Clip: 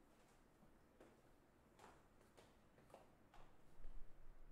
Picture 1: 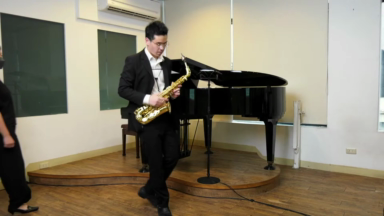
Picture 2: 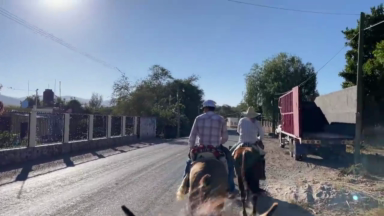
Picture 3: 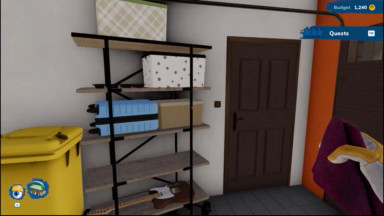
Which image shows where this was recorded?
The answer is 1